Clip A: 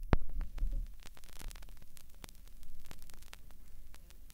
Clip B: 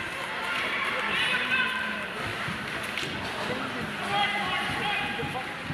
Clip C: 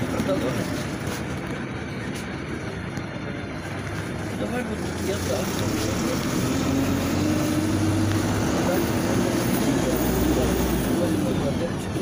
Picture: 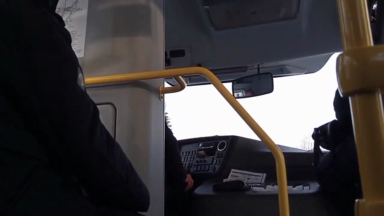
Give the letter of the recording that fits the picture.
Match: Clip C